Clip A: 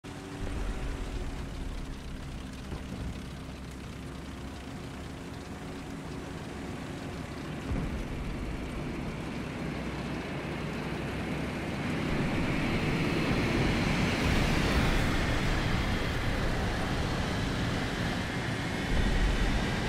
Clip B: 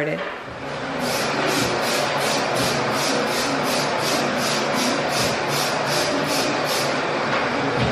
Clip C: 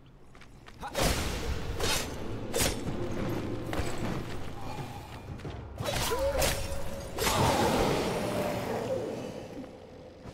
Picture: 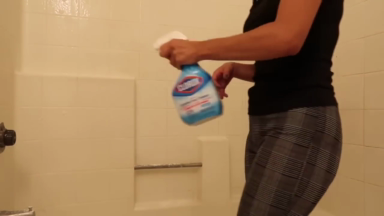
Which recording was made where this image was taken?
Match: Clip B